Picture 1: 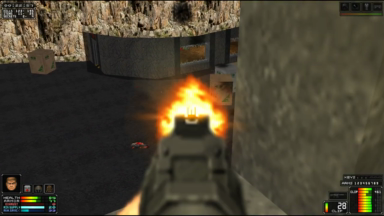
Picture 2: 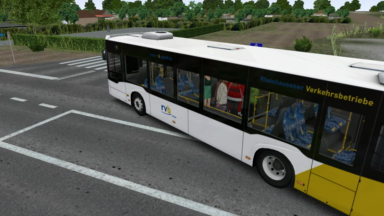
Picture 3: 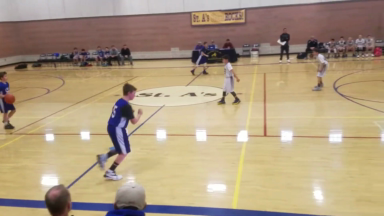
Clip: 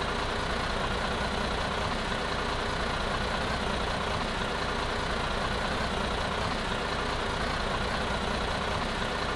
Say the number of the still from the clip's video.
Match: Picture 2